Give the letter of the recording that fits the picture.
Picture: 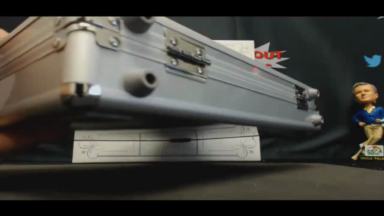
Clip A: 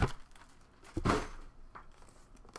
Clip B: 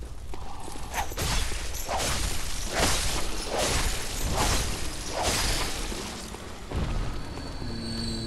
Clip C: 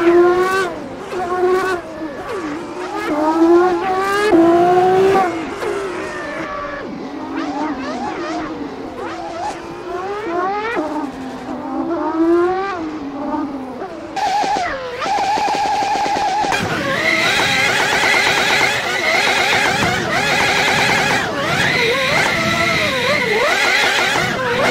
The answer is A